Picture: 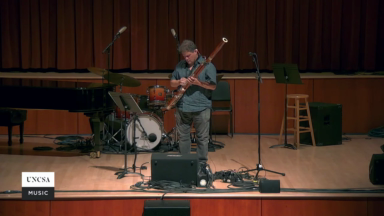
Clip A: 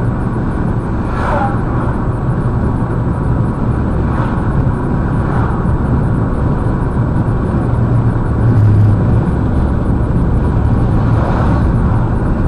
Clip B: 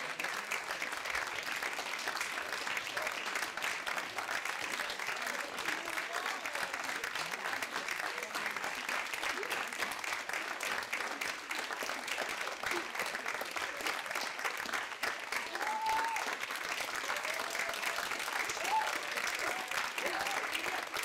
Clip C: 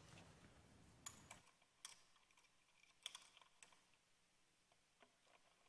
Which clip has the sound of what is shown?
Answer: C